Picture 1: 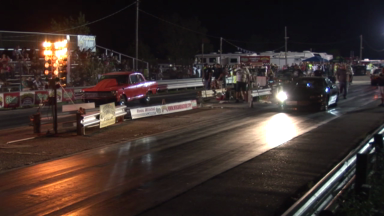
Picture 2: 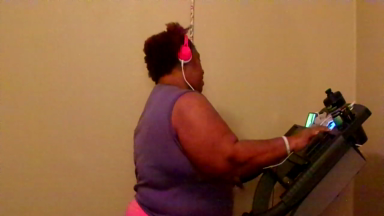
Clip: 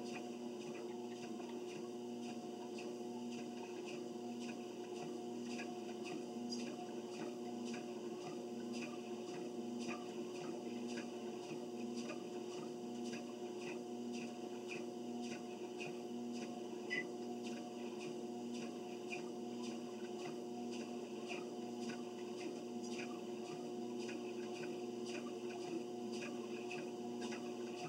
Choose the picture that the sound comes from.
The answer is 2